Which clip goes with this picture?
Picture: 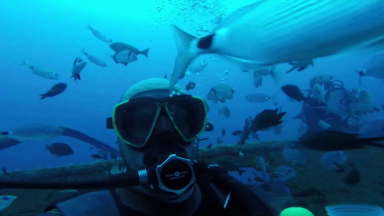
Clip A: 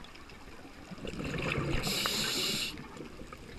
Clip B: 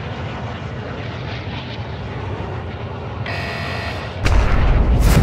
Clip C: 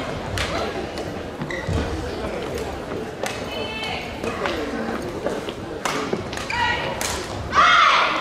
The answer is A